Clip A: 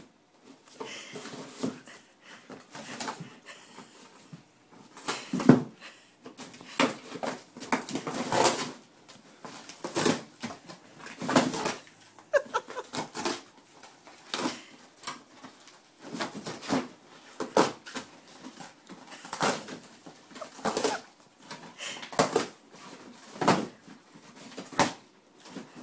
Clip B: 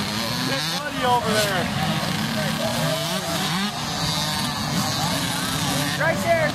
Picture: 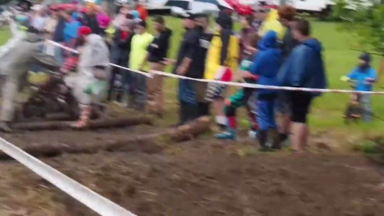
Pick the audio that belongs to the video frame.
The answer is B